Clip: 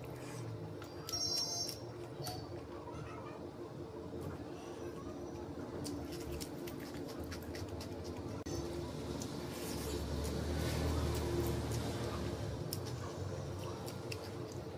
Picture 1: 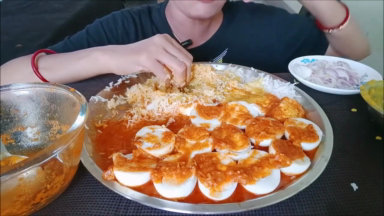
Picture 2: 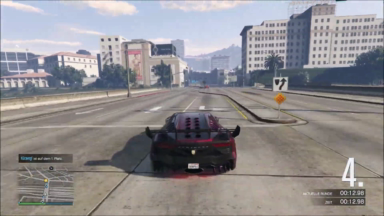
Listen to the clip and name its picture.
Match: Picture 1